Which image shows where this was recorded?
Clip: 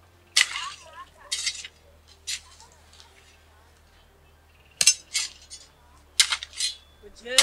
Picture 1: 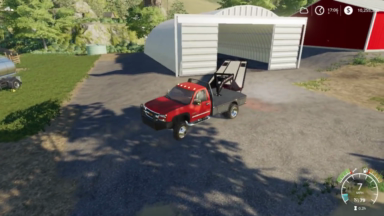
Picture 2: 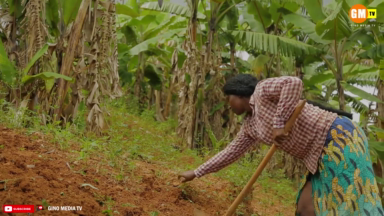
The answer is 2